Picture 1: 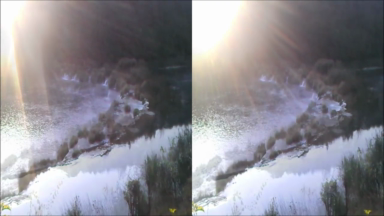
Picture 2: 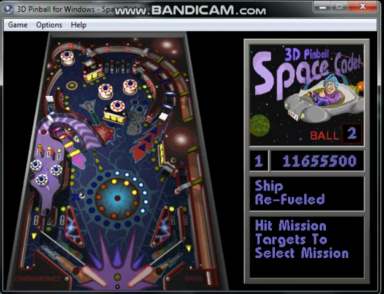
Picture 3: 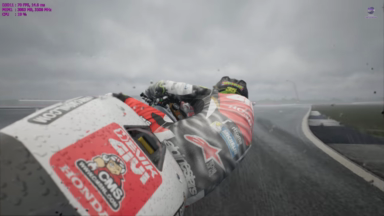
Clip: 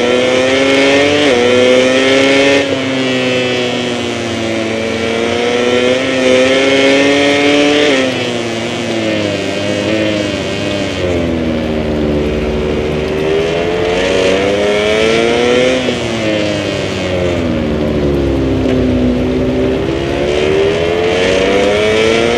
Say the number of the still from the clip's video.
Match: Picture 3